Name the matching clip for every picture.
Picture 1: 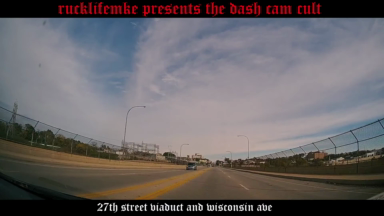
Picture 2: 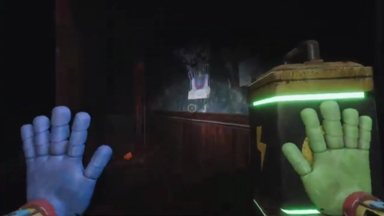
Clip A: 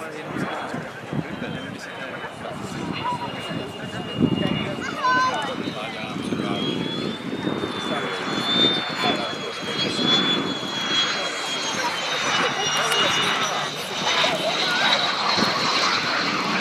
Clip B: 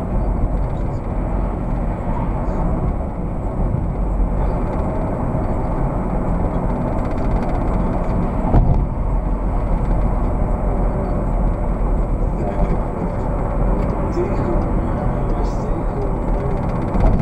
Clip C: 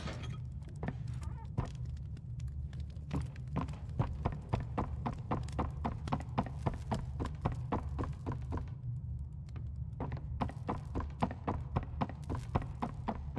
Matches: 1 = B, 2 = C